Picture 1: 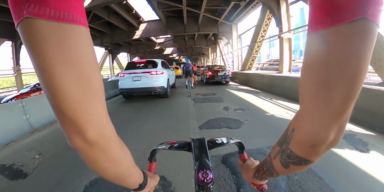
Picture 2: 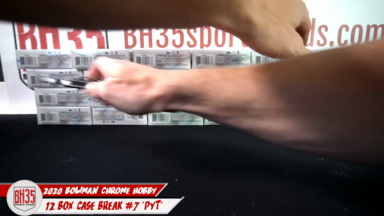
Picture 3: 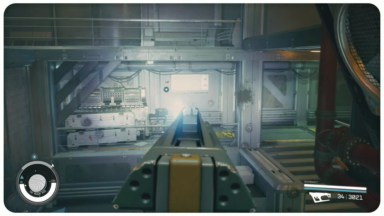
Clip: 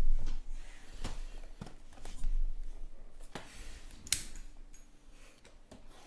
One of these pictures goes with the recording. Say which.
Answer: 2